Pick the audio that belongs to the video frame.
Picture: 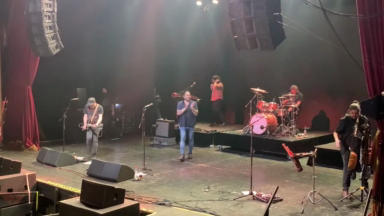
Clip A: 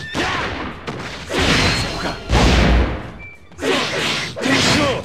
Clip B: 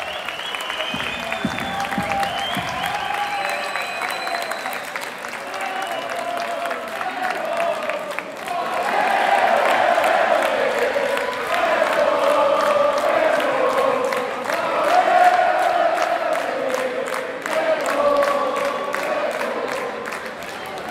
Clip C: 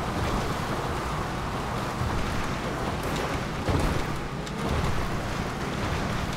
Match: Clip B